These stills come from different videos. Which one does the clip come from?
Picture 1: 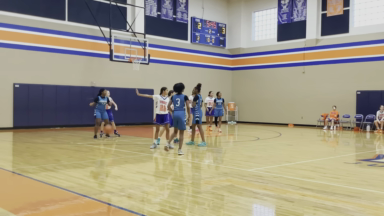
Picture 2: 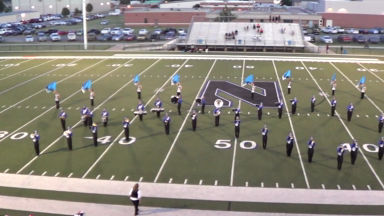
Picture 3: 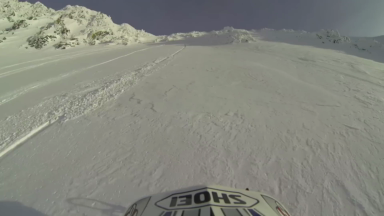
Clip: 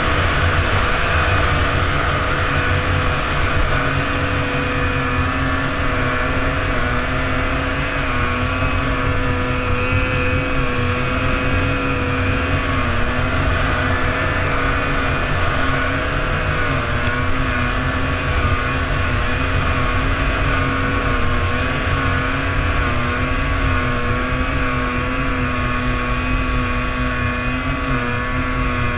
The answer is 3